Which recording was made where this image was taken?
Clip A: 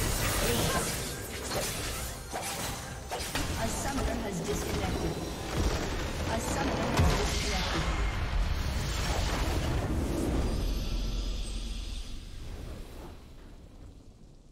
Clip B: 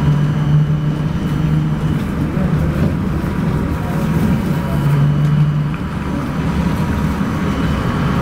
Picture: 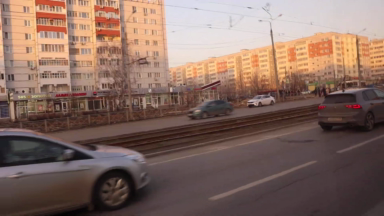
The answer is B